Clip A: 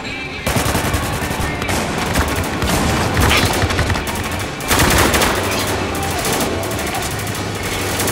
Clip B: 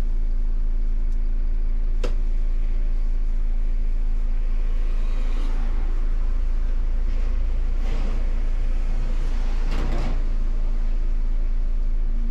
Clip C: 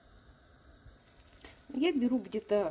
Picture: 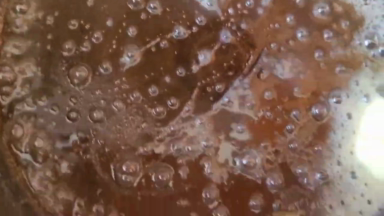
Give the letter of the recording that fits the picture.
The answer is C